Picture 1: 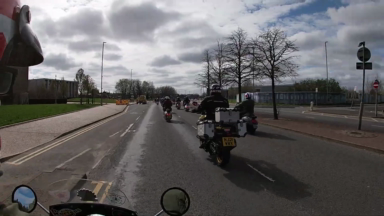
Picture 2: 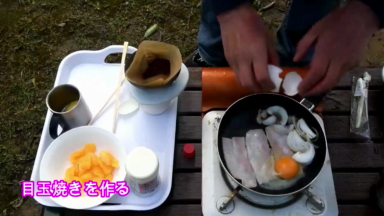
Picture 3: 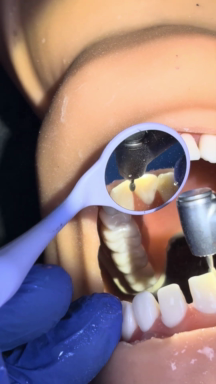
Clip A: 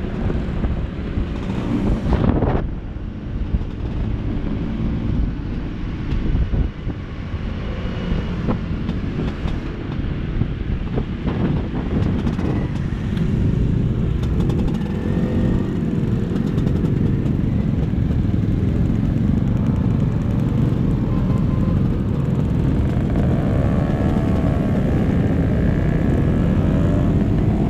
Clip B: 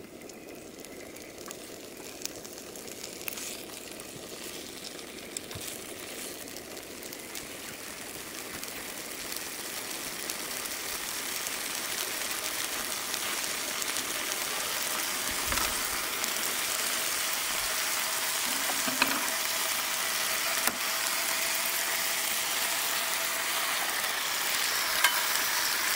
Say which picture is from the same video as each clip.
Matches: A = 1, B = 2